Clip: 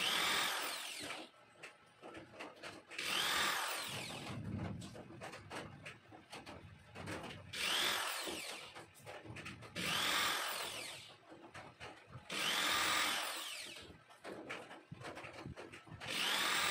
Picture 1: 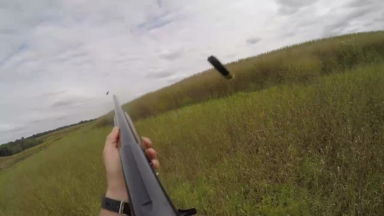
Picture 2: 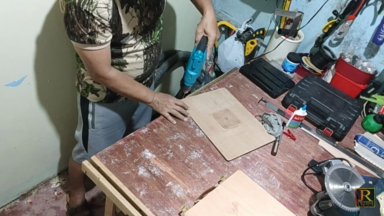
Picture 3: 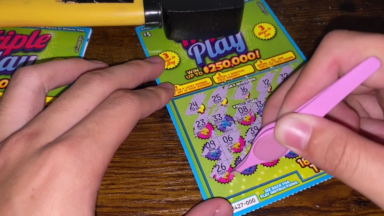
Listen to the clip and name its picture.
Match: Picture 2